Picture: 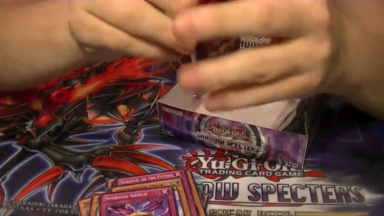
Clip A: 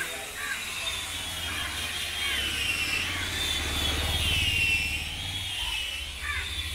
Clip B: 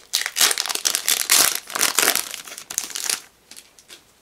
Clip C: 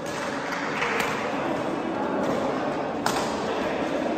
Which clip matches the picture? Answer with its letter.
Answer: B